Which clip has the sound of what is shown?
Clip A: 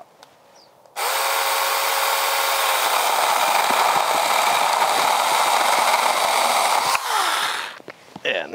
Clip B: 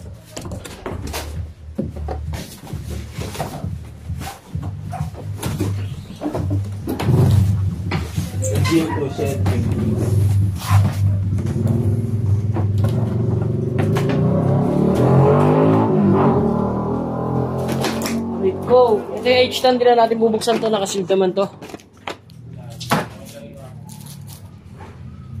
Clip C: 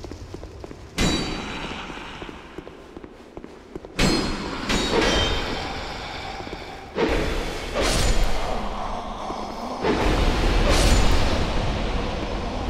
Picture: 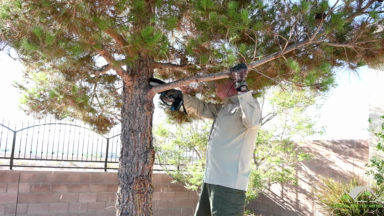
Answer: A